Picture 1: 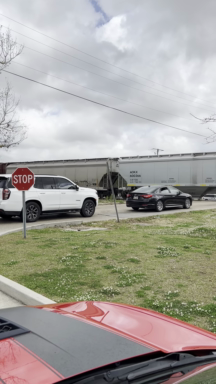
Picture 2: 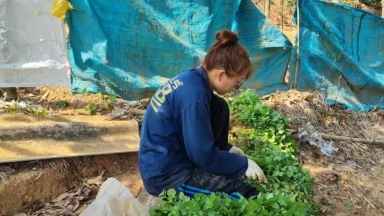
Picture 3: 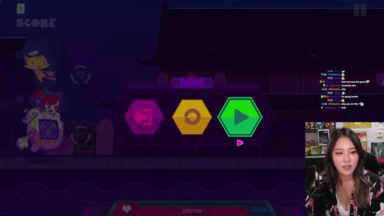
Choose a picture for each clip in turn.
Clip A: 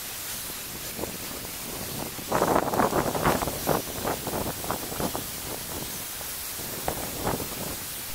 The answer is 2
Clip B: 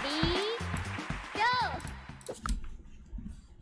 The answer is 3